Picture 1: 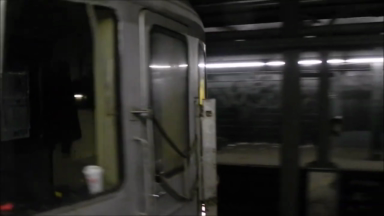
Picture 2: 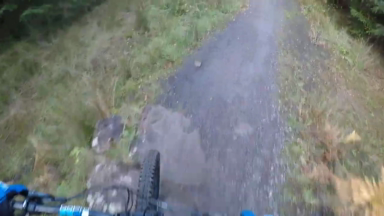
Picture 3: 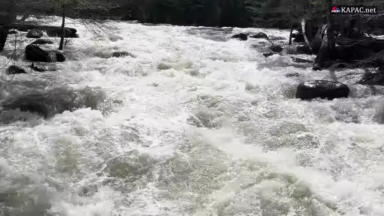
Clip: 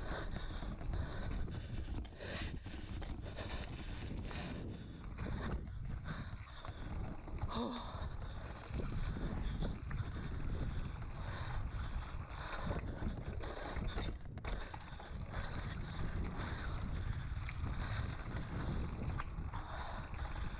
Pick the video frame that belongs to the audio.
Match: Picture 2